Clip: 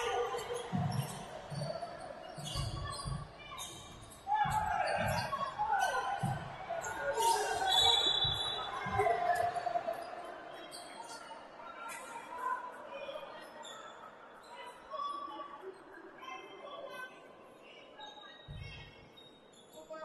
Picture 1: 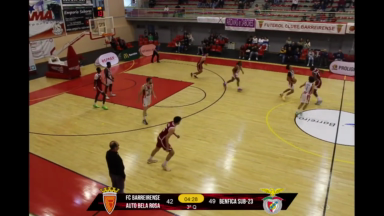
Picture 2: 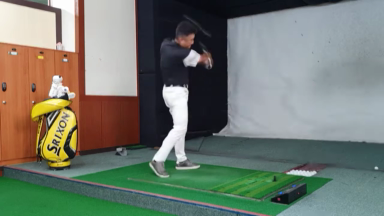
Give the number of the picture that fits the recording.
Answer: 1